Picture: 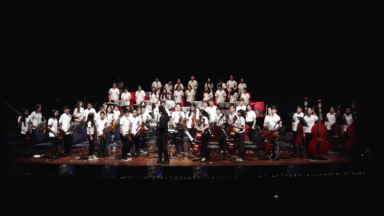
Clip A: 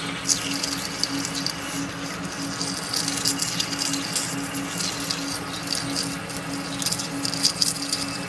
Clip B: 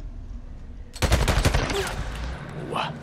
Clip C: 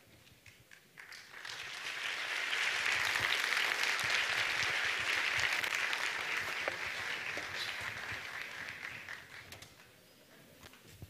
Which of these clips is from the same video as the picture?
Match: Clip C